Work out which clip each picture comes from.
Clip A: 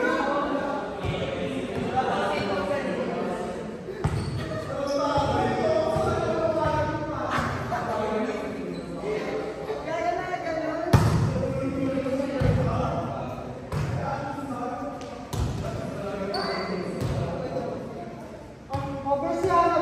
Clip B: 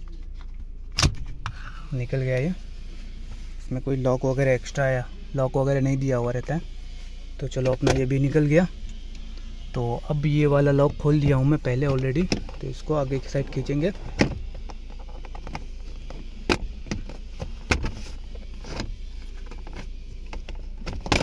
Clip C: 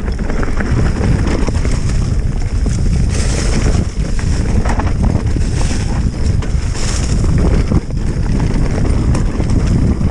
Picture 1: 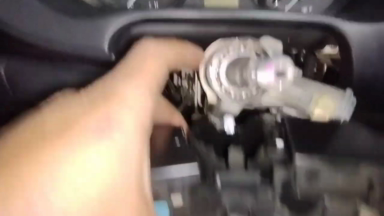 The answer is B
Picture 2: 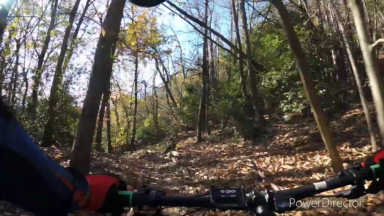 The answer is C